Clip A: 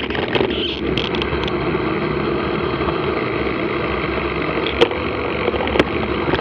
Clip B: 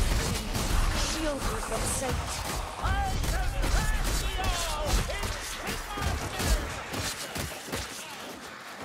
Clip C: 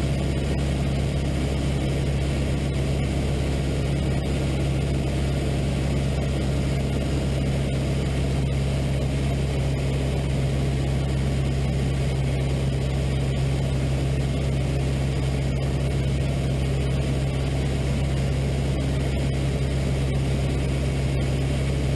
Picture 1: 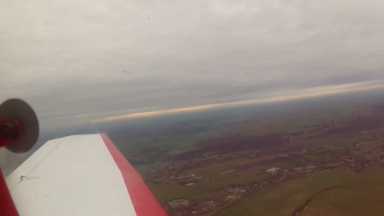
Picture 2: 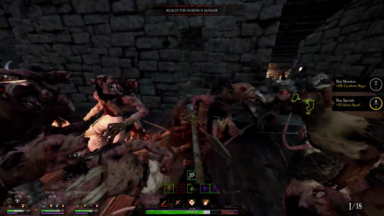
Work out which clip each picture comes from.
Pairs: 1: C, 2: B